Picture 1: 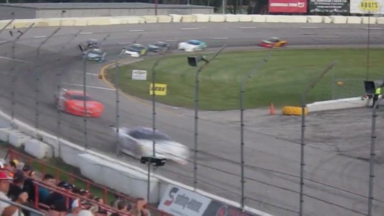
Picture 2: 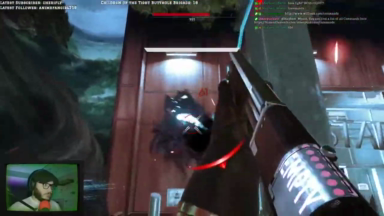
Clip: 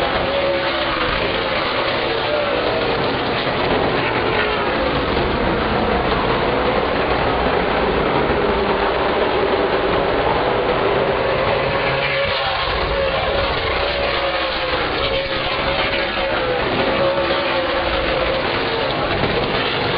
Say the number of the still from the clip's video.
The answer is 1